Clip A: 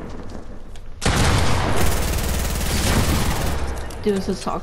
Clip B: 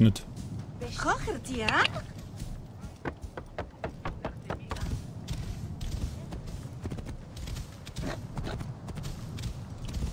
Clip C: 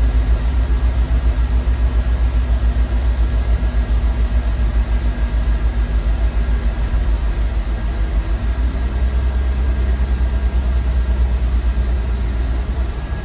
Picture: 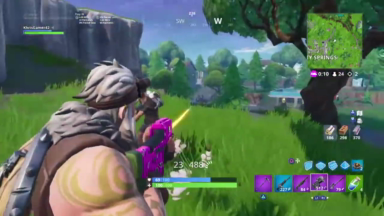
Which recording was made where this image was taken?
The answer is A